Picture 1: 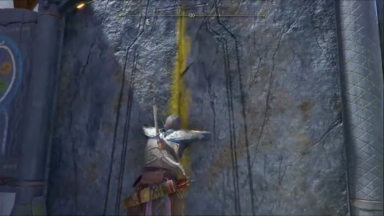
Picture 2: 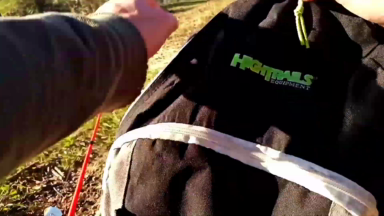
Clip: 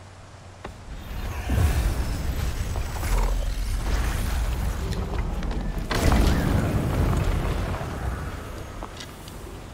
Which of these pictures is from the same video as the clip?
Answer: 1